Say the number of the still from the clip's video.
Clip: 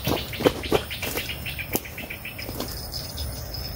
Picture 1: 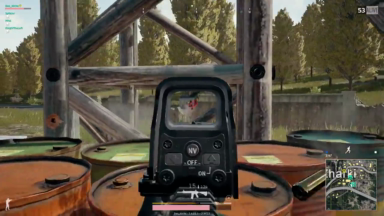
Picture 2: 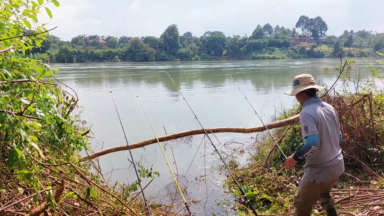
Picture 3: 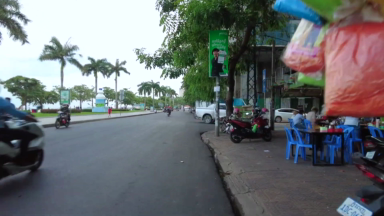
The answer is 2